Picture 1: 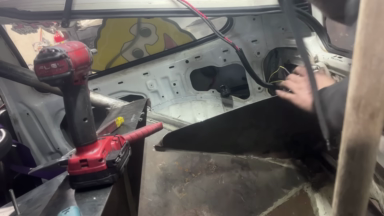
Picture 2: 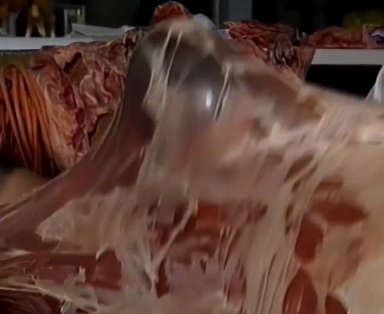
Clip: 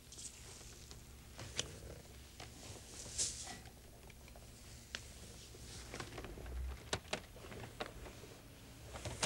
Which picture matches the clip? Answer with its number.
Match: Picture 2